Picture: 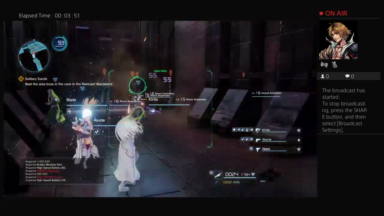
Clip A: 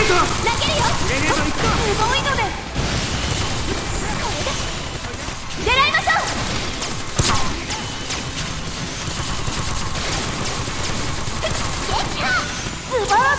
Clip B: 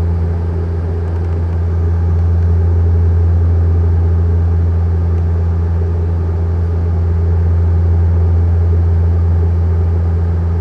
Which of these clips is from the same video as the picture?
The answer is A